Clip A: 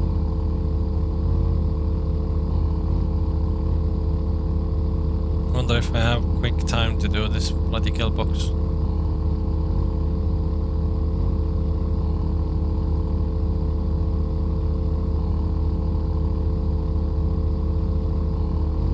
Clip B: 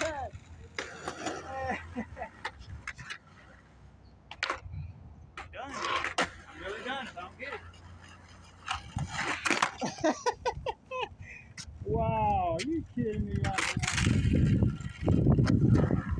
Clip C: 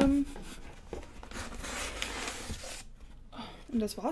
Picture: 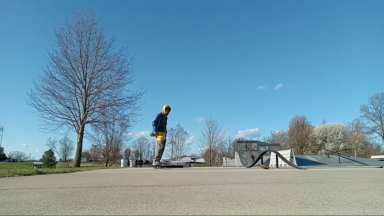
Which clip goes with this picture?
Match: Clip B